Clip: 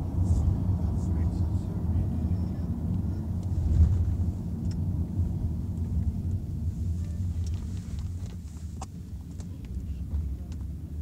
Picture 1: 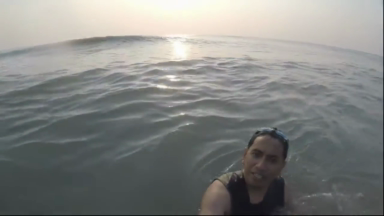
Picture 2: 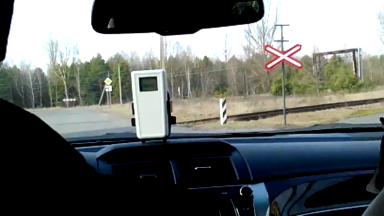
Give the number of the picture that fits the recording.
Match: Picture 2